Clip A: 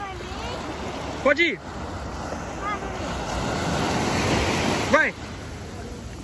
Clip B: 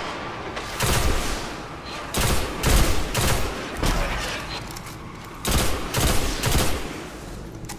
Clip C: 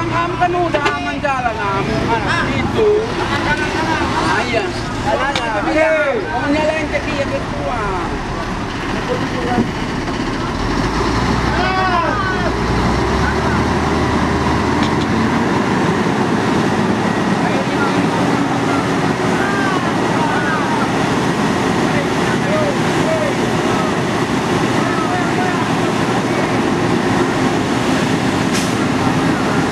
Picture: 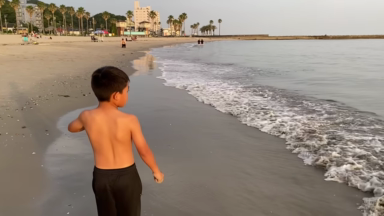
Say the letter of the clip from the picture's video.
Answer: A